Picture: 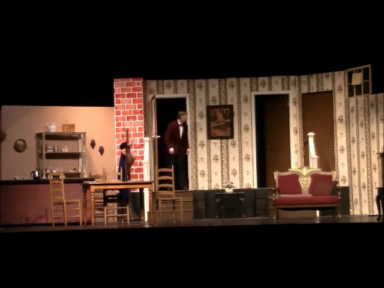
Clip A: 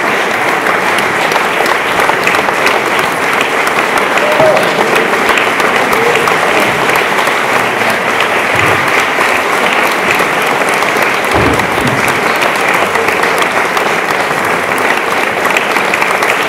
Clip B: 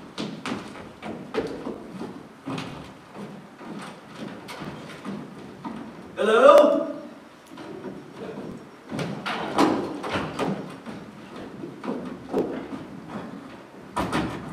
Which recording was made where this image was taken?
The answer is B